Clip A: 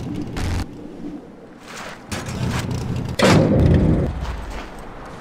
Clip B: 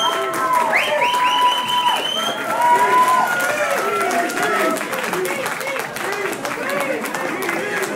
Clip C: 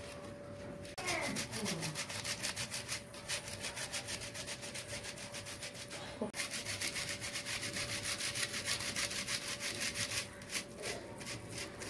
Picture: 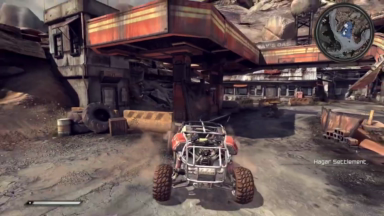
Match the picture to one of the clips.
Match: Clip A